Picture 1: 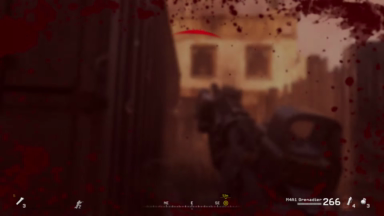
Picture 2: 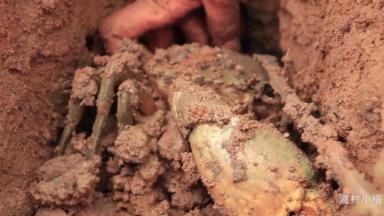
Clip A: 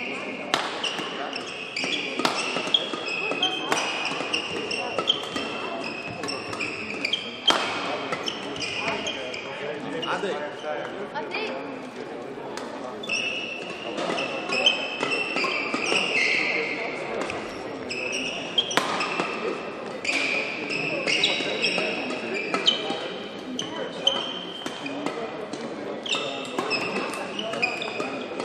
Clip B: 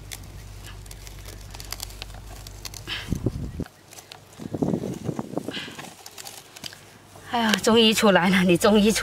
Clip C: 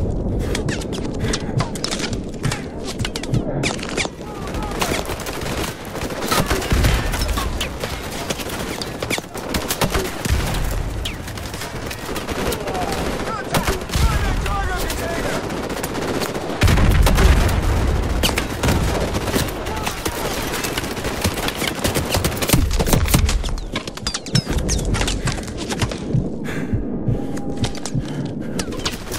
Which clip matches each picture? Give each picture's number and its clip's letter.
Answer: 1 C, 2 B